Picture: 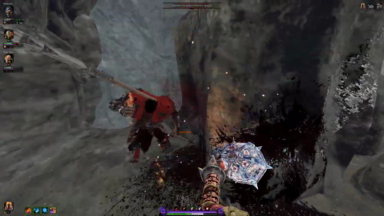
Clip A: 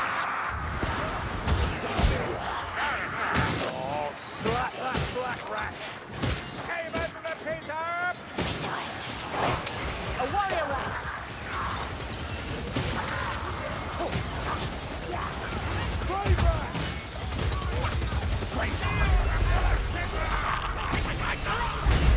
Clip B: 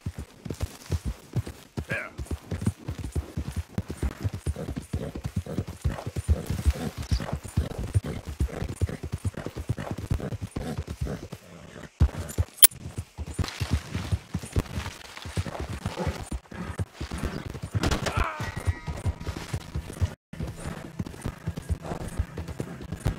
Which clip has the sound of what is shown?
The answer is A